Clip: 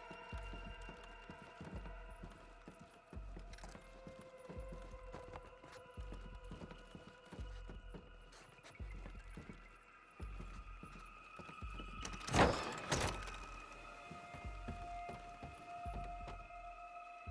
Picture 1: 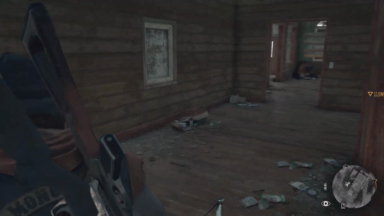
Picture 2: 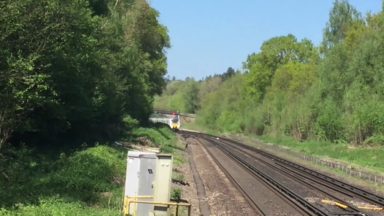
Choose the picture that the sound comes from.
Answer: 1